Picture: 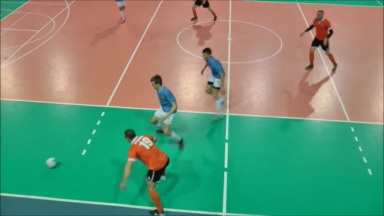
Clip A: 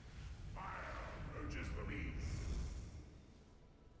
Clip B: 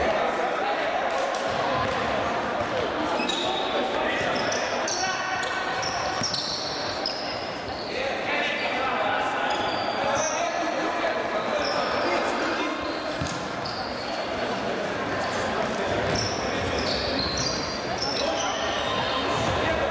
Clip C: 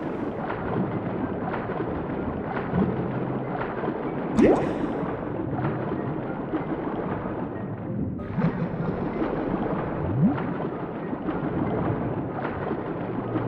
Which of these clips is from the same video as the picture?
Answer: B